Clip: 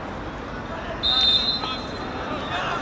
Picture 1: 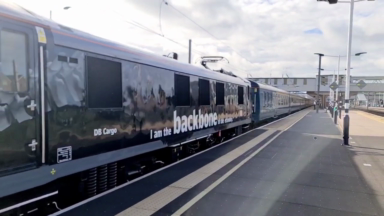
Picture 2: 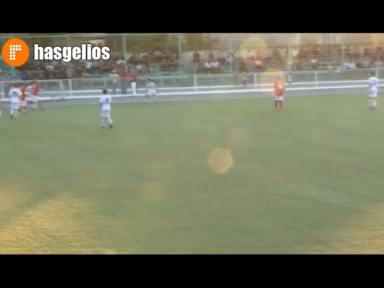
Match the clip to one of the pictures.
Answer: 2